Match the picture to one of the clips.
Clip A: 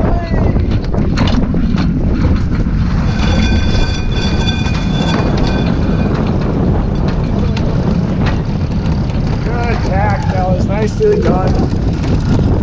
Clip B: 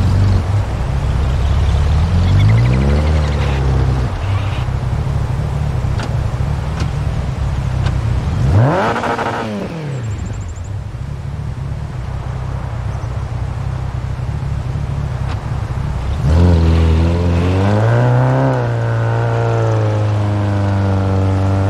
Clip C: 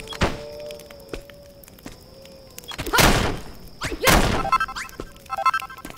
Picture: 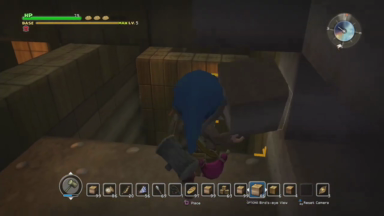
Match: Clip C